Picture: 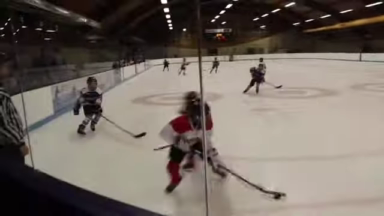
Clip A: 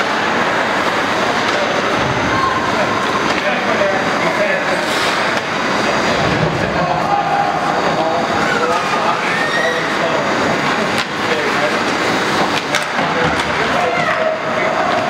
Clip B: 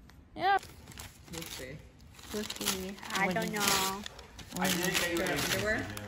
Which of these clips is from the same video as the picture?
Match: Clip A